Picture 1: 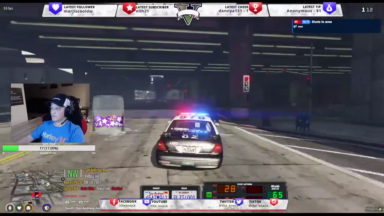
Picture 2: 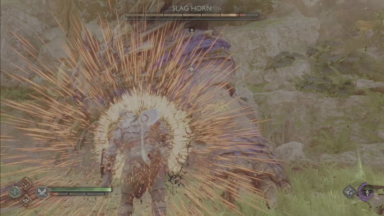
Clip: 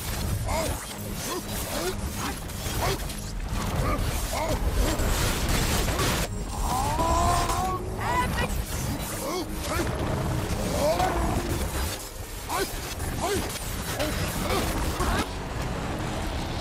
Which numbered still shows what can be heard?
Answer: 2